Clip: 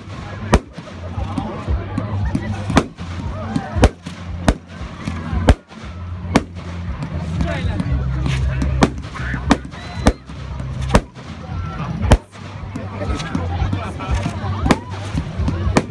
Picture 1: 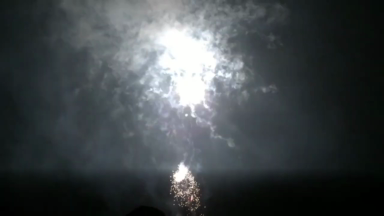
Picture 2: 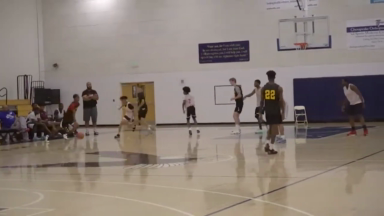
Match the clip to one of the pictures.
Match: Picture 1